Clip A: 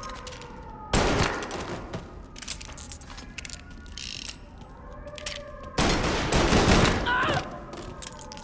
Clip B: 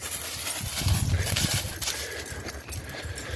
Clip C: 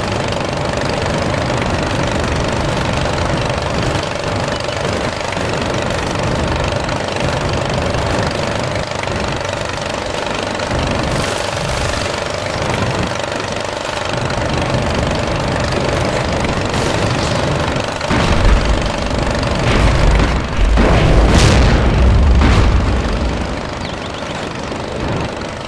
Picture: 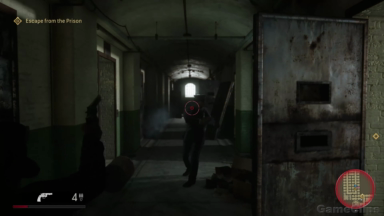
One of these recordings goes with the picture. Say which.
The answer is A